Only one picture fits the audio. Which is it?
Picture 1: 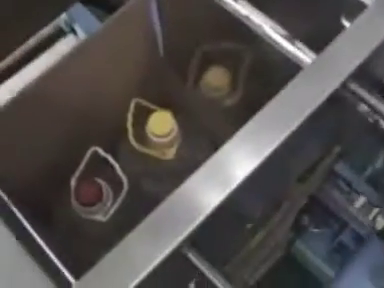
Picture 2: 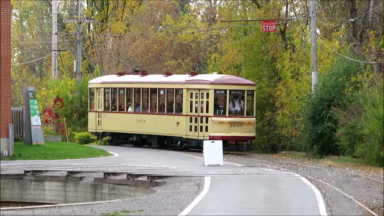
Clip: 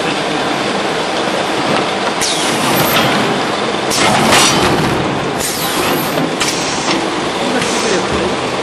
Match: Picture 1